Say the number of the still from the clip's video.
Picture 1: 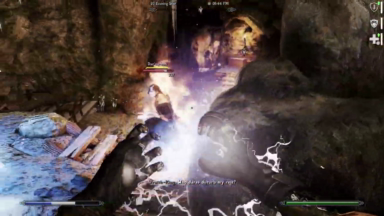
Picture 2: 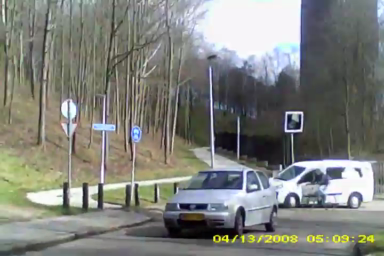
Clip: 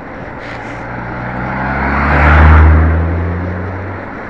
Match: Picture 2